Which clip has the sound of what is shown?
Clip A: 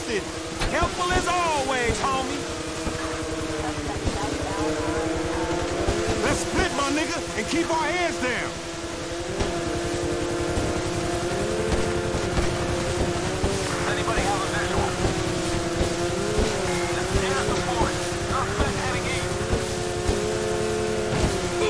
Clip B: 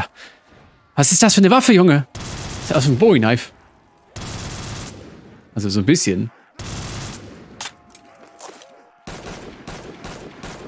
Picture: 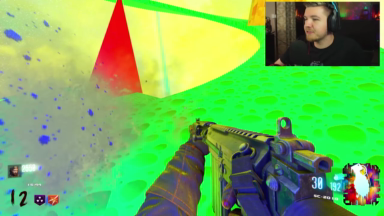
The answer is B